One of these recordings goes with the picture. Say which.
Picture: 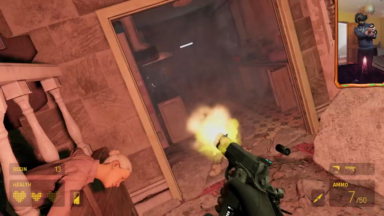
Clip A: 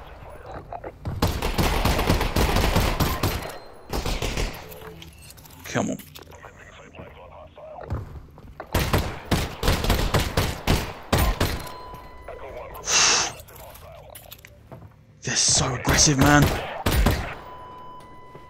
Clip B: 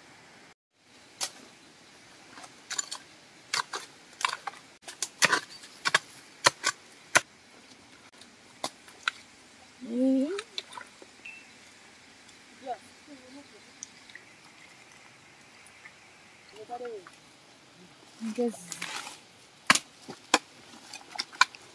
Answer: A